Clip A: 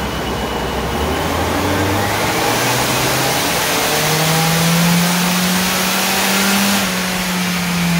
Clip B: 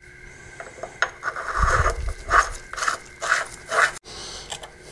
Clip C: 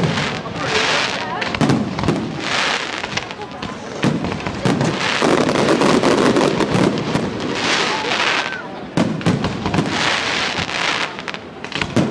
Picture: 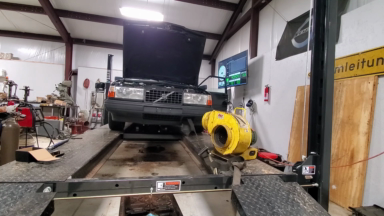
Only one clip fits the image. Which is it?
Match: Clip A